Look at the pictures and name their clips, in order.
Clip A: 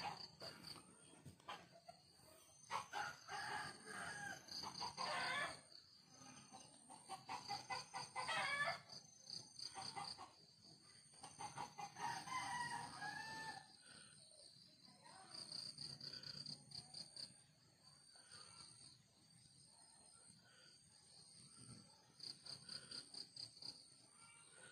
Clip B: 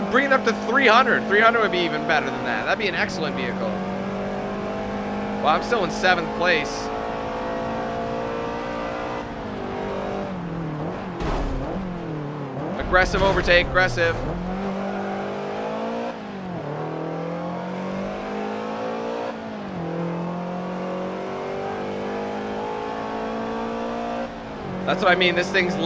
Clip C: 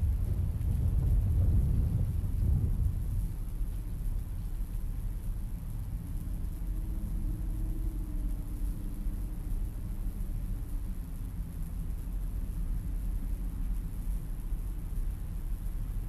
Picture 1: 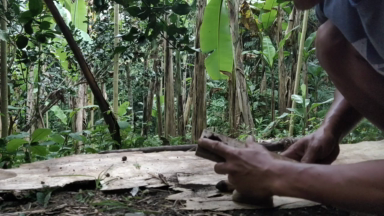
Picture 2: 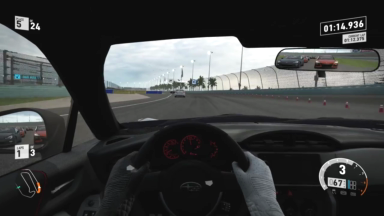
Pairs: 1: A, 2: B